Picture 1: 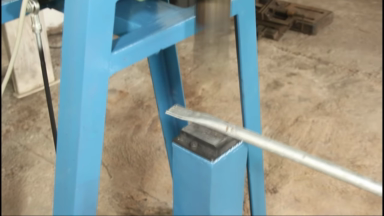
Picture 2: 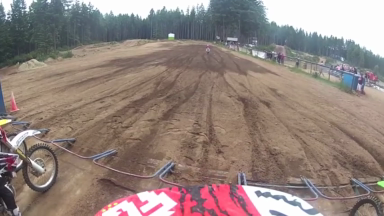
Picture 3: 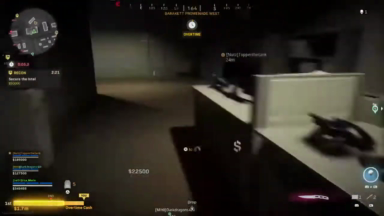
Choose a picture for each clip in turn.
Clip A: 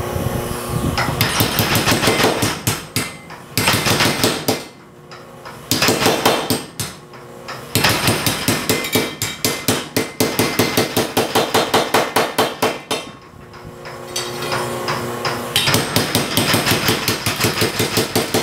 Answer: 1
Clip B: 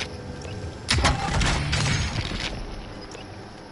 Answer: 3